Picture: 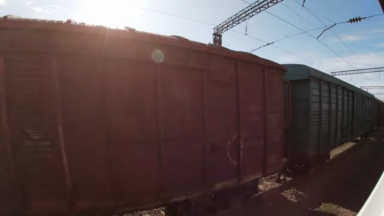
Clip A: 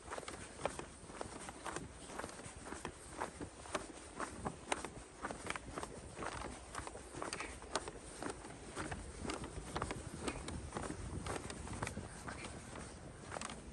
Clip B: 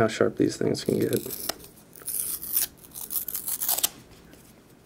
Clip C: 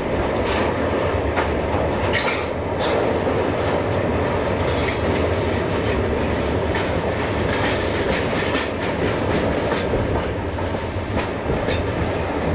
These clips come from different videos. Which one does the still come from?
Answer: C